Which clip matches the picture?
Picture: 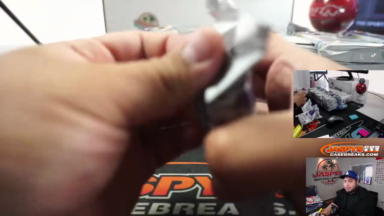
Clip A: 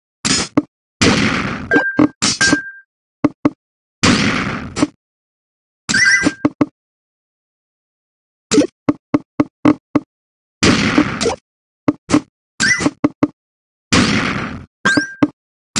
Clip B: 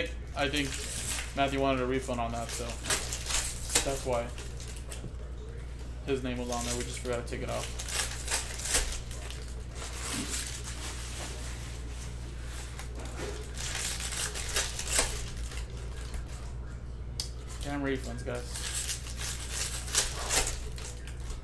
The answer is B